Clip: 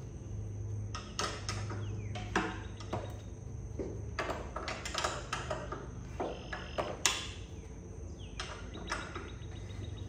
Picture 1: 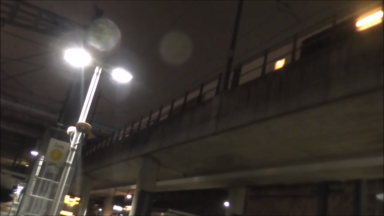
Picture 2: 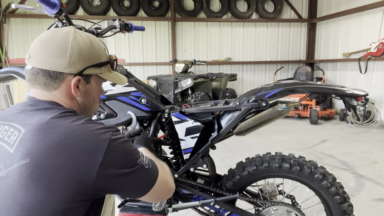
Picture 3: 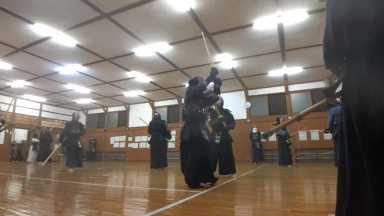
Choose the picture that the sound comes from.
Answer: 2